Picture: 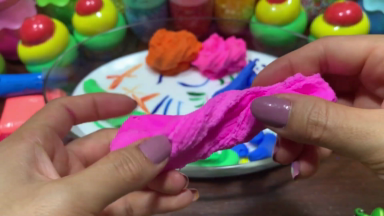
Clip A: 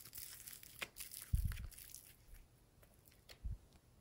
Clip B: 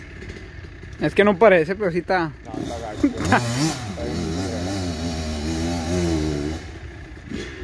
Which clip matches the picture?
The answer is A